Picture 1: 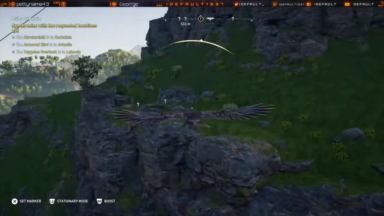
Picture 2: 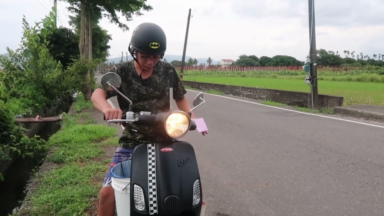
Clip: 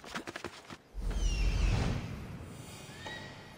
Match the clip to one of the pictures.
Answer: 1